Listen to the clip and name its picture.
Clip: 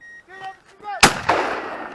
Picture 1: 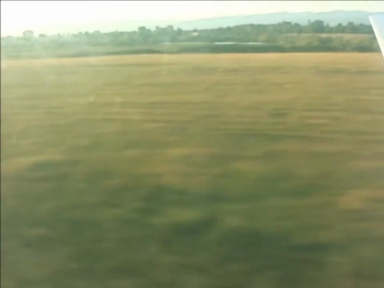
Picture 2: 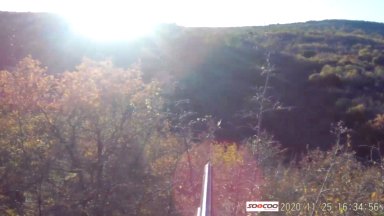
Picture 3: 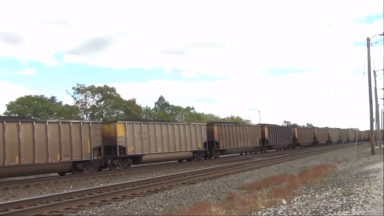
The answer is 2